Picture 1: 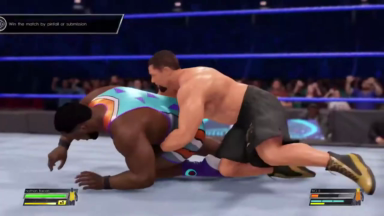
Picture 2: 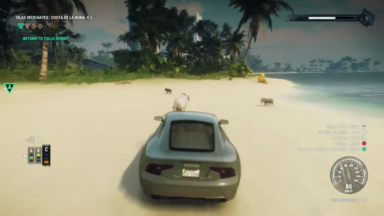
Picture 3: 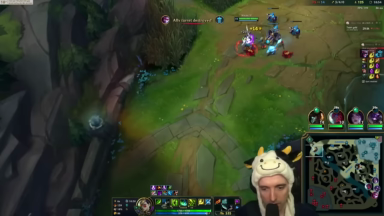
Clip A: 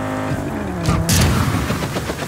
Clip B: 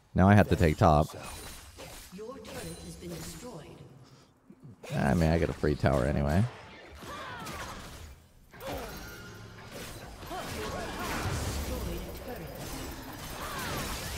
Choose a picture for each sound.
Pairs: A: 2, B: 3